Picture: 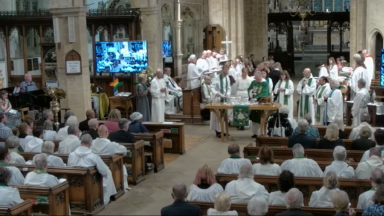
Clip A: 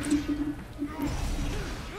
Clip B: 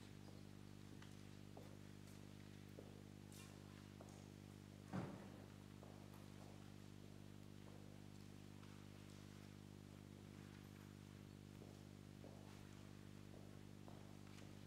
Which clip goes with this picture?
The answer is B